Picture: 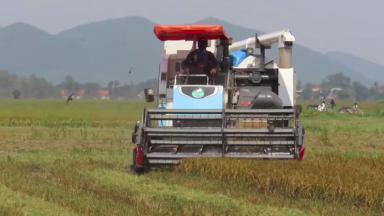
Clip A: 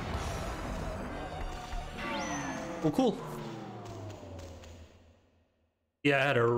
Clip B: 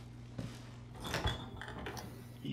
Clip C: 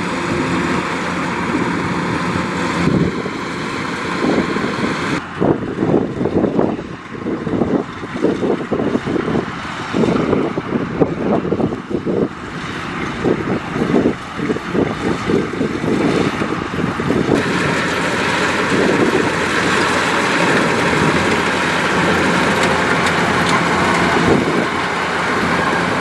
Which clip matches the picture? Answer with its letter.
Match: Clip C